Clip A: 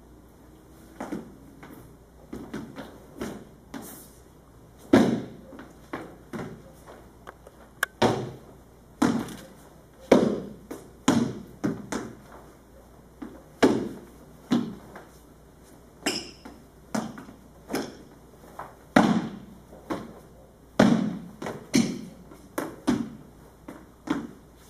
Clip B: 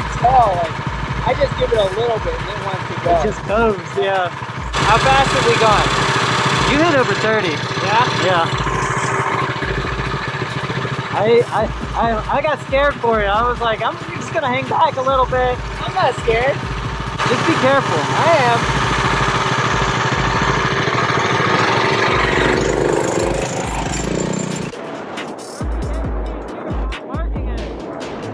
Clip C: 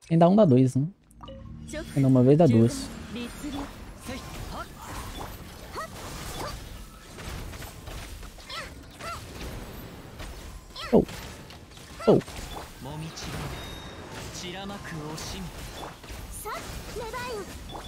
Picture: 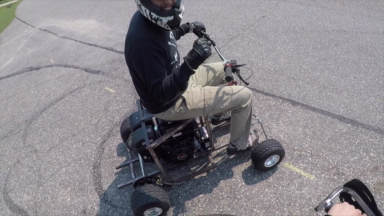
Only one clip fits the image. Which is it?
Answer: B